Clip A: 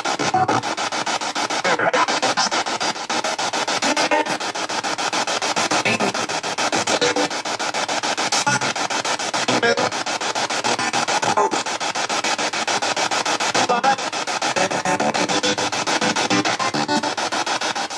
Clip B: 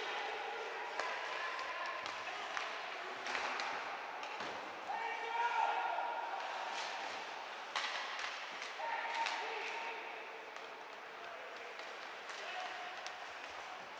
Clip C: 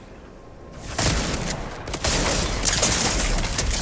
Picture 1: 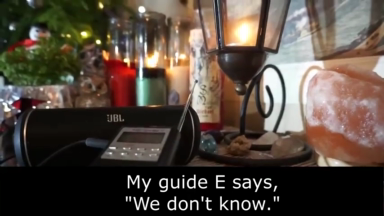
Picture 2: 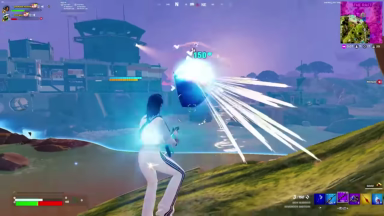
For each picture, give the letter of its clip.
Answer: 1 A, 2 C